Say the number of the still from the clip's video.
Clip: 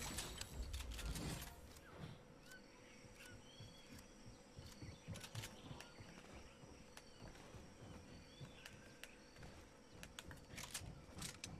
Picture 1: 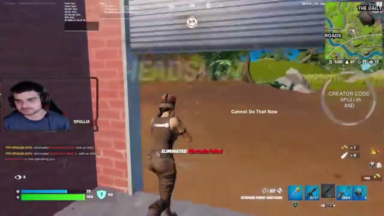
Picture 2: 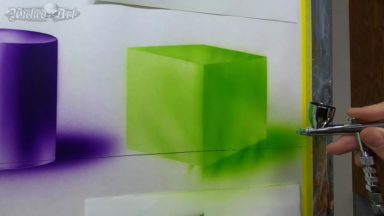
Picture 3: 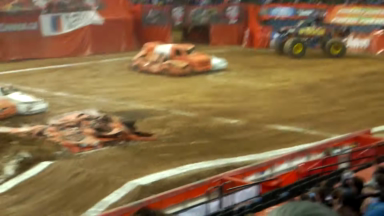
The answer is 1